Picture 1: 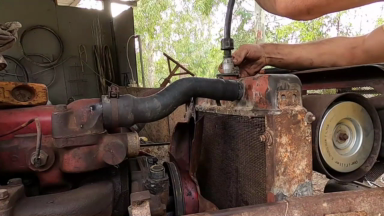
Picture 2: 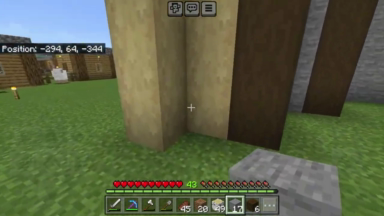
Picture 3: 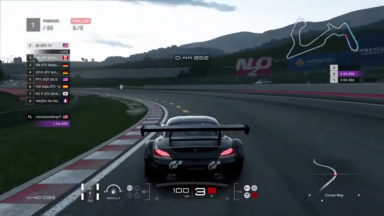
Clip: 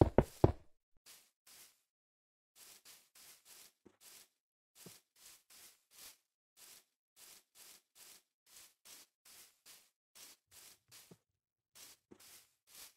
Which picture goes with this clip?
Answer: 2